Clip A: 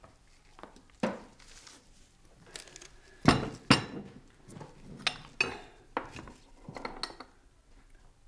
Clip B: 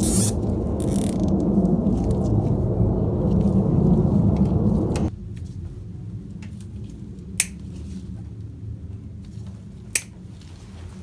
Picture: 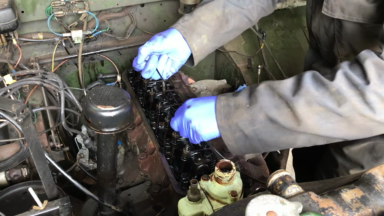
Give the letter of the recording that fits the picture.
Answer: B